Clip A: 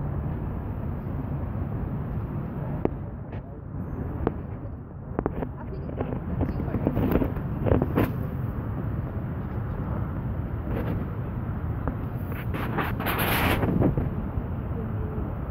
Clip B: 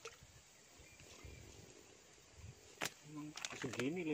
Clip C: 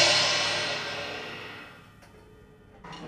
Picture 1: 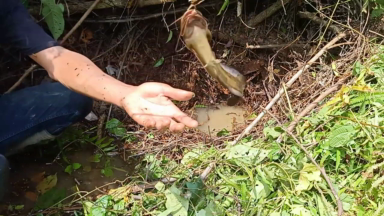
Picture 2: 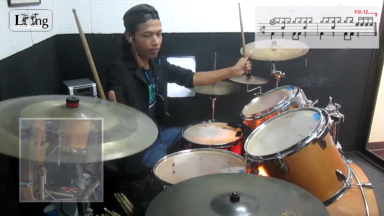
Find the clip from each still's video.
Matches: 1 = B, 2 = C